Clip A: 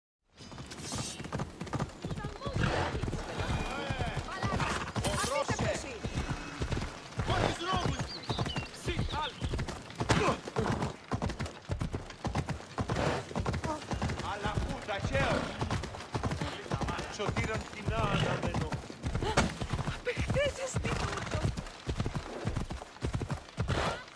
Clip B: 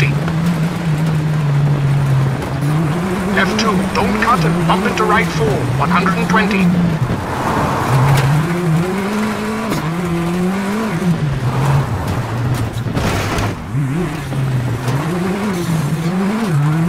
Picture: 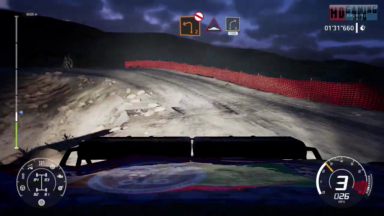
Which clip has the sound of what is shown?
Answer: B